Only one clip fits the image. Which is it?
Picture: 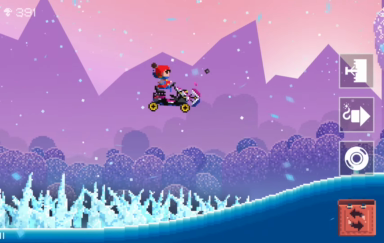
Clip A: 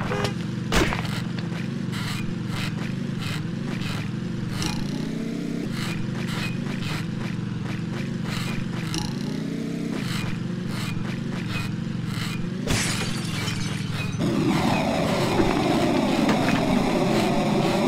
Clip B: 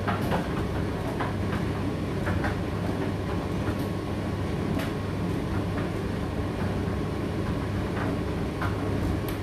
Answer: A